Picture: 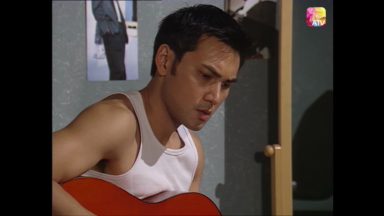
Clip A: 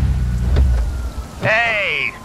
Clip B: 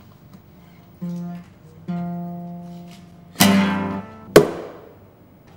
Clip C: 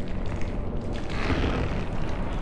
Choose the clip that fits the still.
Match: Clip B